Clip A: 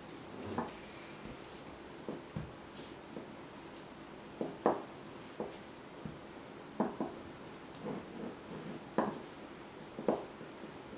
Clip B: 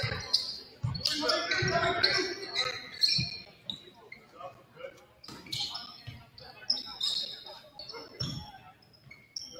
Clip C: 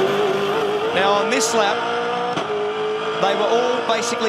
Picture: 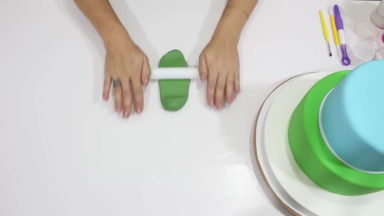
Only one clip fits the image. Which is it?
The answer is A